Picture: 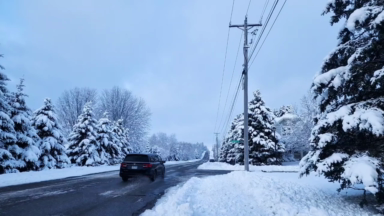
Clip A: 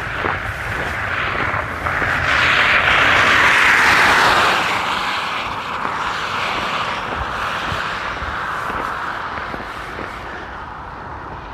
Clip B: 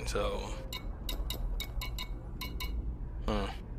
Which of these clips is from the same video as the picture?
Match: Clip A